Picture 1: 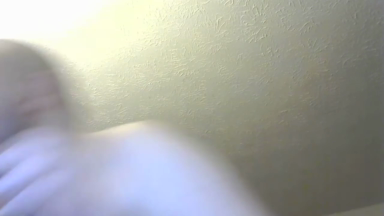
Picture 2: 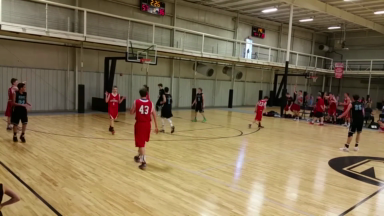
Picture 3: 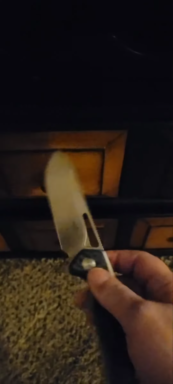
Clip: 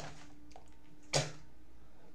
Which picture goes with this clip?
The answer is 1